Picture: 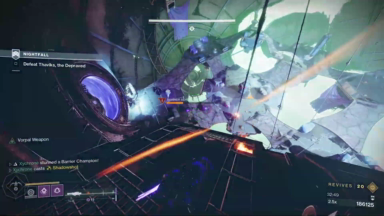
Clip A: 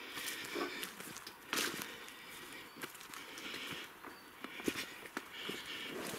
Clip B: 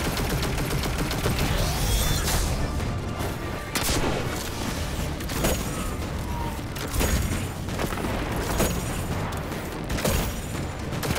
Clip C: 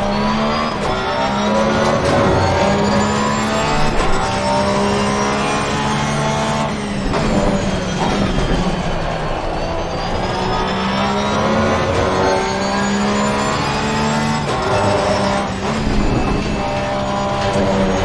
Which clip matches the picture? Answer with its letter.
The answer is B